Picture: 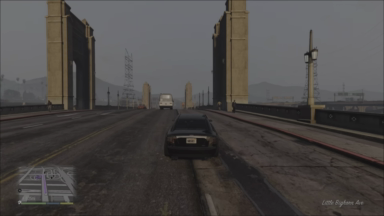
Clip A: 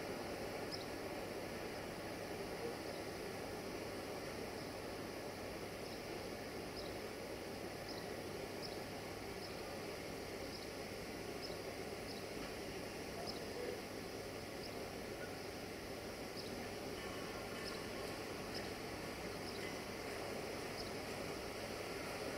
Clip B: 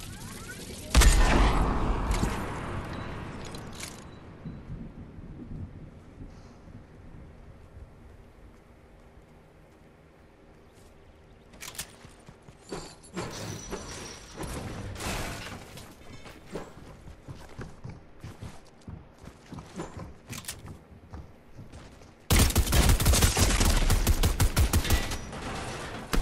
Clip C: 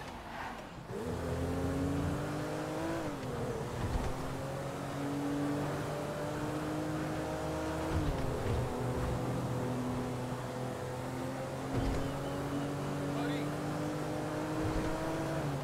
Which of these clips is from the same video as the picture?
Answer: C